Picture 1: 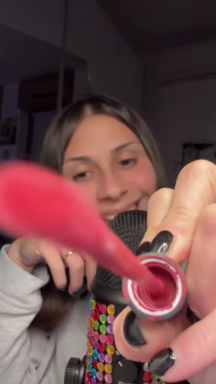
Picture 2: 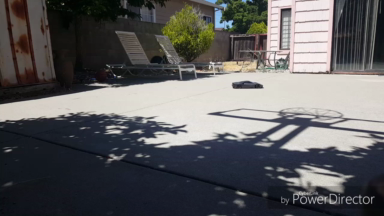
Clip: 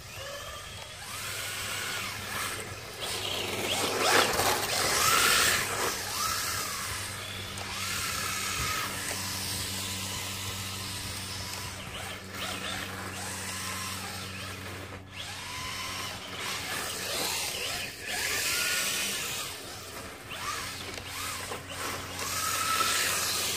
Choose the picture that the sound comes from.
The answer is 2